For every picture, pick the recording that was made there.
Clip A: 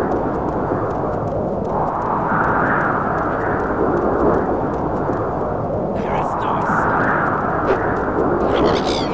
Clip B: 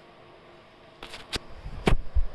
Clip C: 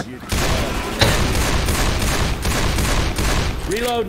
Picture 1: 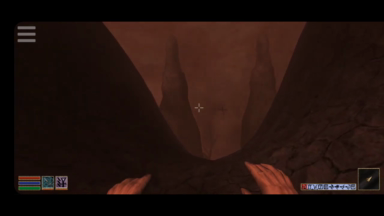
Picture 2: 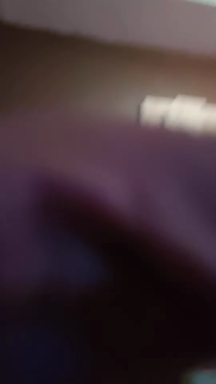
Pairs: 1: A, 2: B